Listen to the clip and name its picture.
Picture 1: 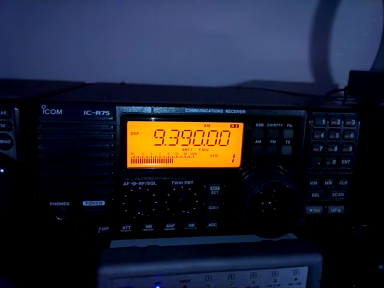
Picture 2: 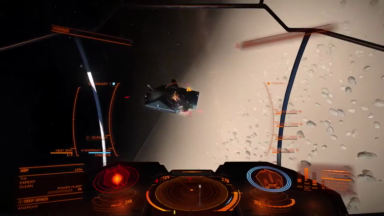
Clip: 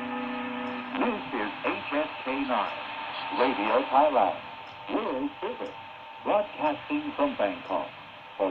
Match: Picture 1